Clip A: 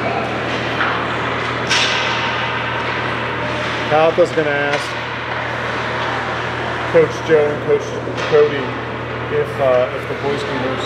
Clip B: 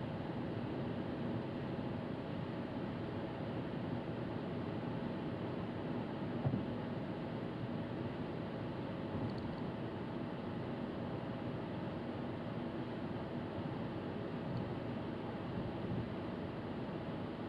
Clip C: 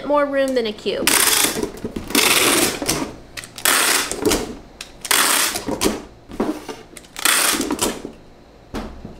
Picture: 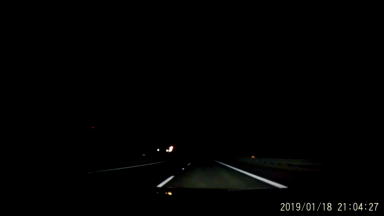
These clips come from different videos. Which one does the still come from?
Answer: B